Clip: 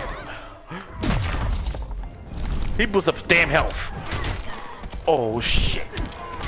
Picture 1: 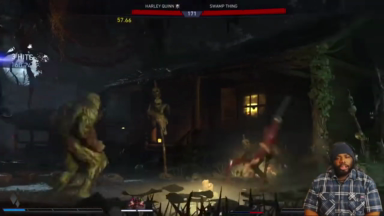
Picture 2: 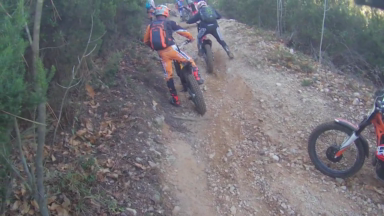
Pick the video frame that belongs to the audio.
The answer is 1